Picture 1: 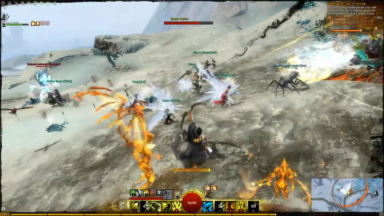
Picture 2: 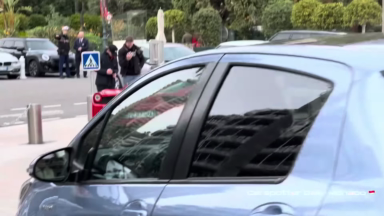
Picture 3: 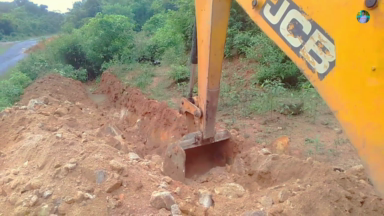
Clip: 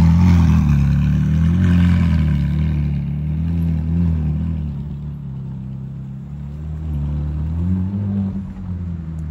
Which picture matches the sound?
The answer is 2